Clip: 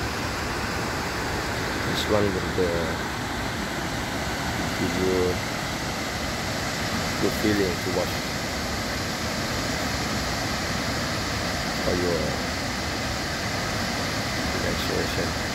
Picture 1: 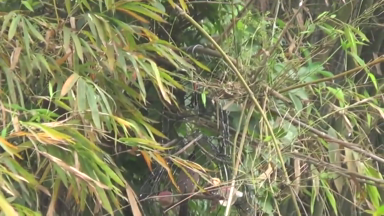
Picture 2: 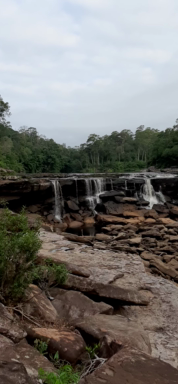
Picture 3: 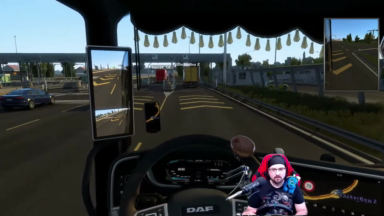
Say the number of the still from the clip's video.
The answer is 2